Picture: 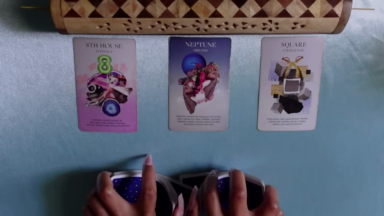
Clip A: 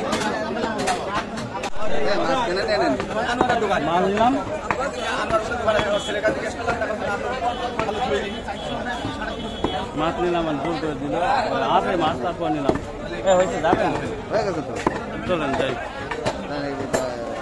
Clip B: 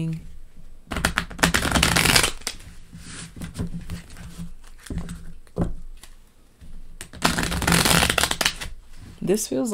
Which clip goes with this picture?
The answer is B